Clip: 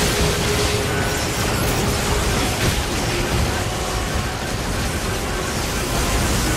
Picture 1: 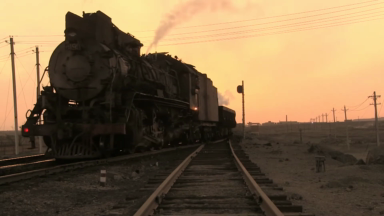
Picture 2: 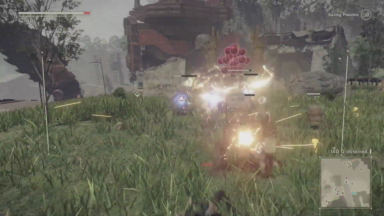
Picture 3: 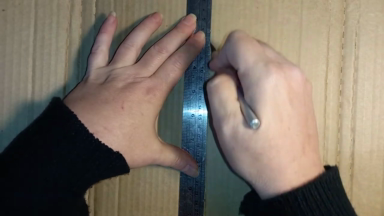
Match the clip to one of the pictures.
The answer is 2